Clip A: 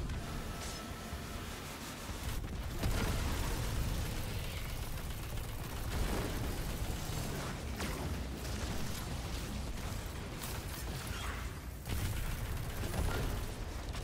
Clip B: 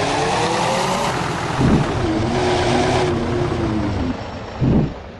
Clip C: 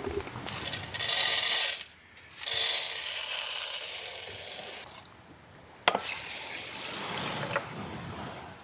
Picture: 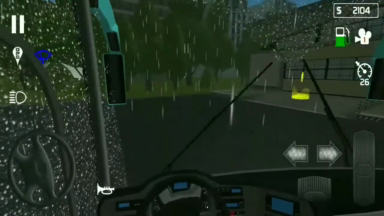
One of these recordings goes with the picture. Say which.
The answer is B